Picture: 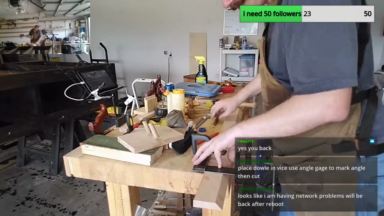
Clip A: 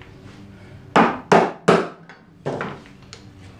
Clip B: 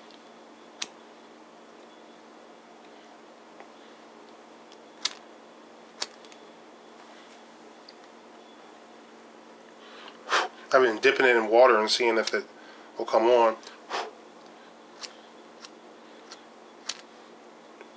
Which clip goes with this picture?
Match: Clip A